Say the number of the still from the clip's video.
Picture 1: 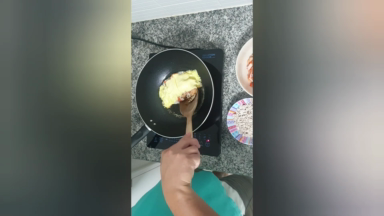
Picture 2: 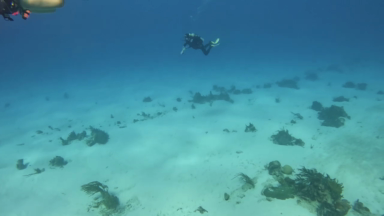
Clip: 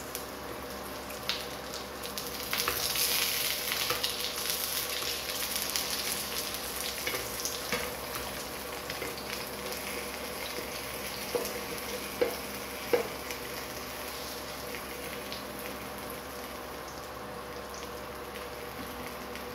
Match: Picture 1